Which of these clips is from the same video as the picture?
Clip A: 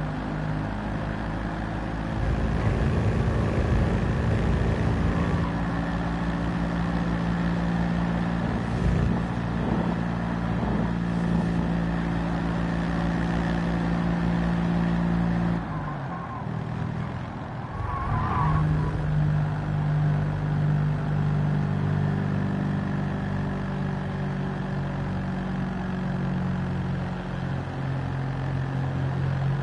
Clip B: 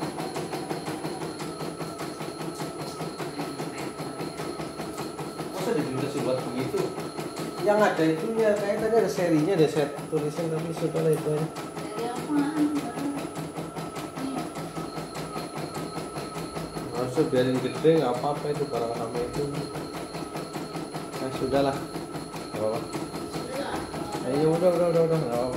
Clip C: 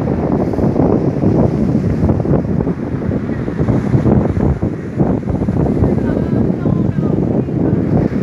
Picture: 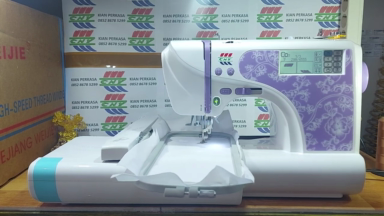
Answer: B